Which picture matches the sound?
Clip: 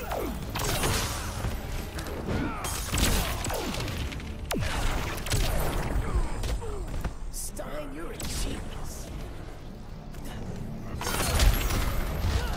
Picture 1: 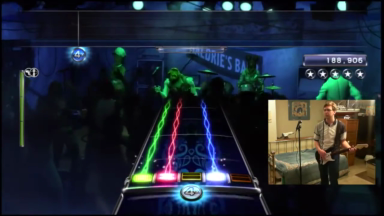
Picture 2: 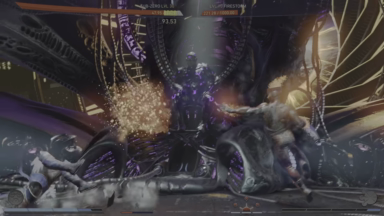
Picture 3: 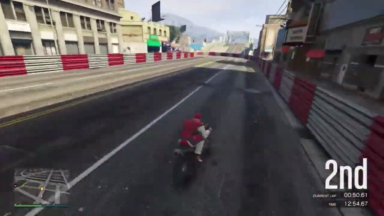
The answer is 2